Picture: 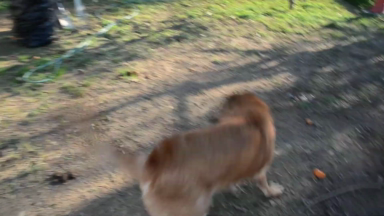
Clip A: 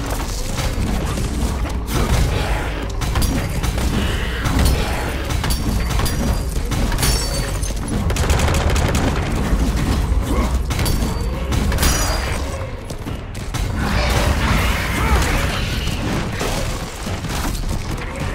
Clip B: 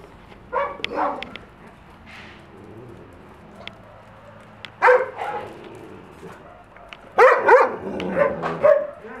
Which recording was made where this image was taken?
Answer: B